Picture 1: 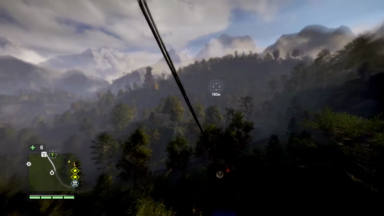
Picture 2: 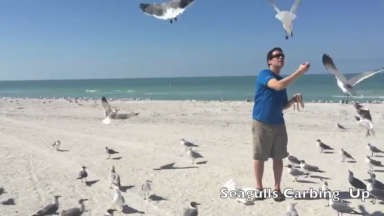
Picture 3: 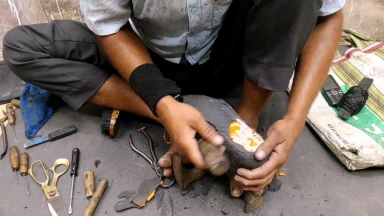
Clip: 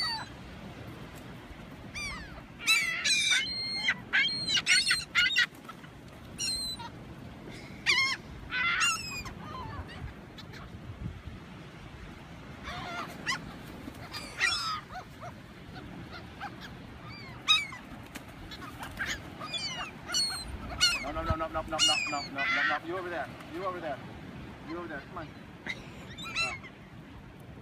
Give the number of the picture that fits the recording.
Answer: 2